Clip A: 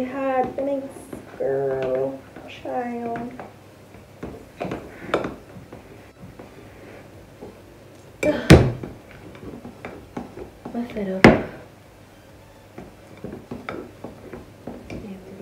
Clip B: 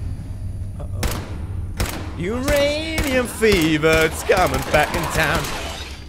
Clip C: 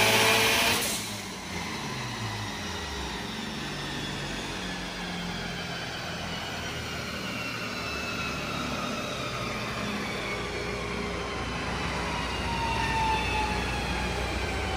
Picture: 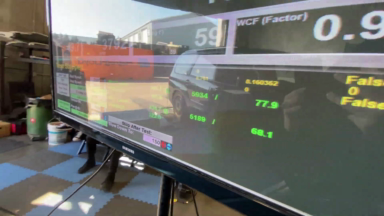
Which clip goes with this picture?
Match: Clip C